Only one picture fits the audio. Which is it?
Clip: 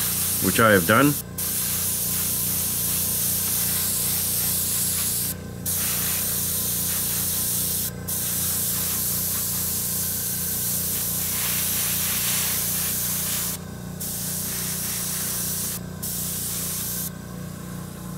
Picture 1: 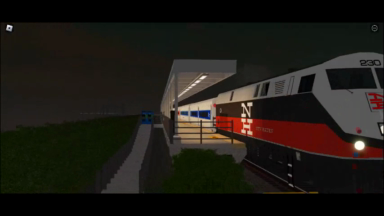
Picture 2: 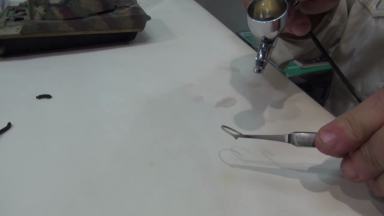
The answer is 2